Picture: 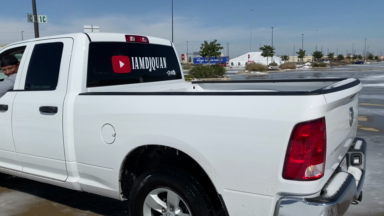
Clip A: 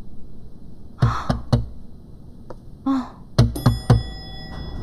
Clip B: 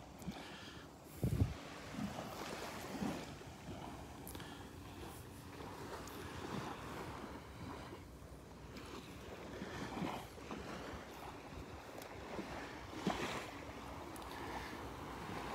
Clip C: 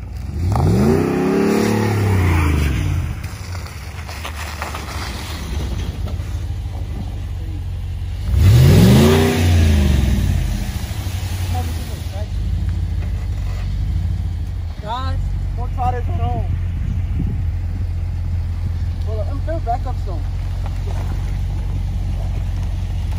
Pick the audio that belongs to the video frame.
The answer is C